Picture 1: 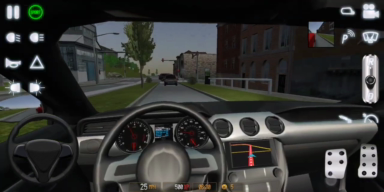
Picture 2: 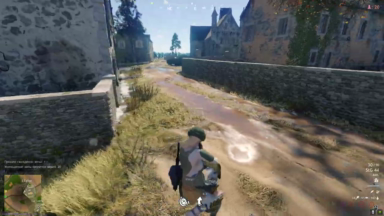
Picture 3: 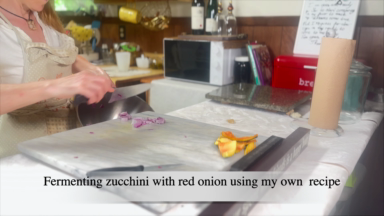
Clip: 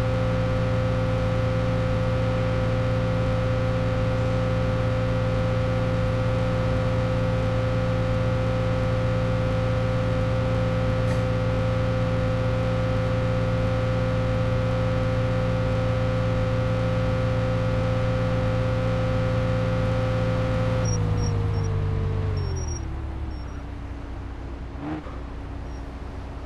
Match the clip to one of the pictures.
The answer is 1